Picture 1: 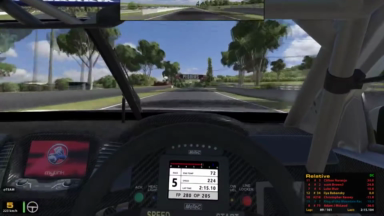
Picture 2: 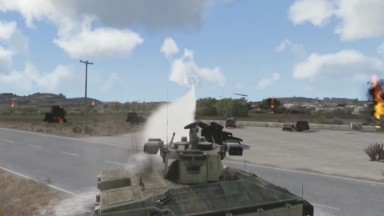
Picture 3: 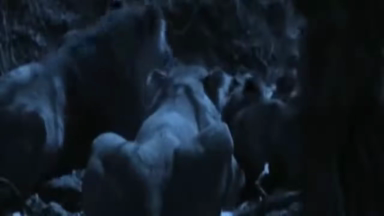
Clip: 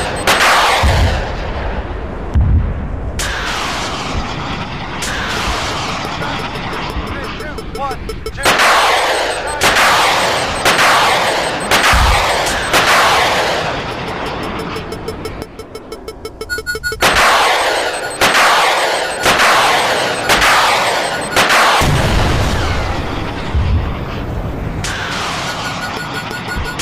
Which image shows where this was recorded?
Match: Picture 2